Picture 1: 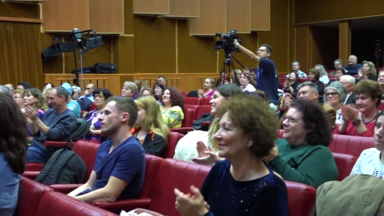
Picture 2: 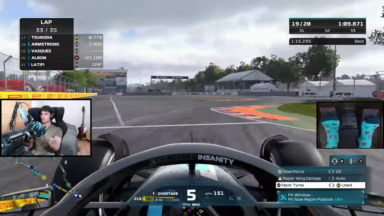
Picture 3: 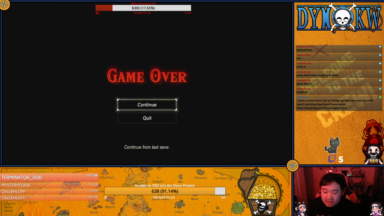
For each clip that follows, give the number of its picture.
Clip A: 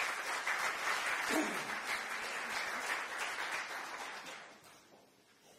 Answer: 1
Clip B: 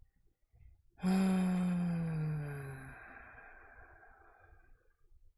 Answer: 3